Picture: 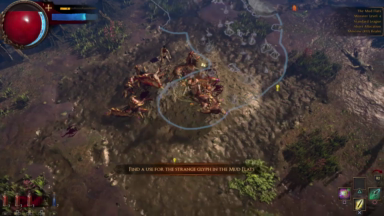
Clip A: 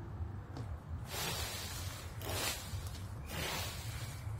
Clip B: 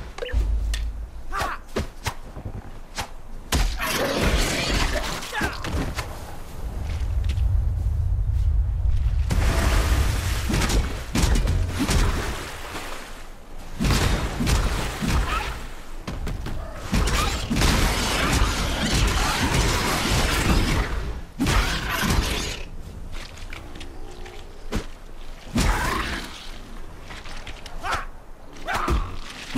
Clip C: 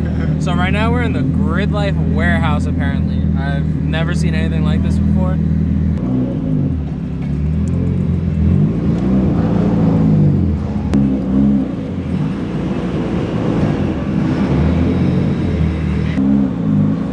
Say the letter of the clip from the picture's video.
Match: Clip B